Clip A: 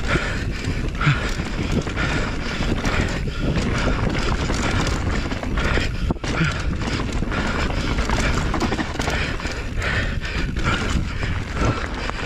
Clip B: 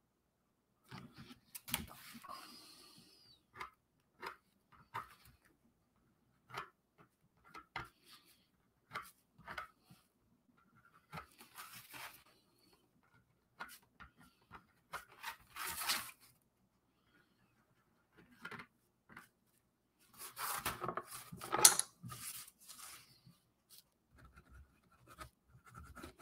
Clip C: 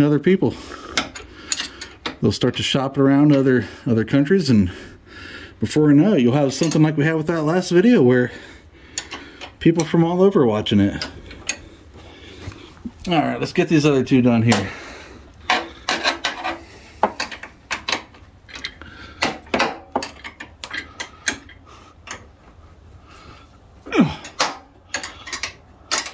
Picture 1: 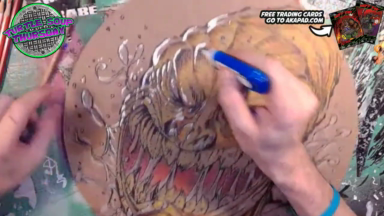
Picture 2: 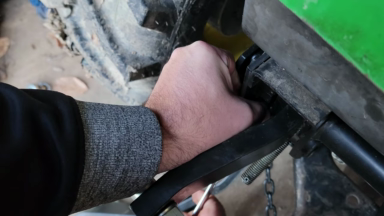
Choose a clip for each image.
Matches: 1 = B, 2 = C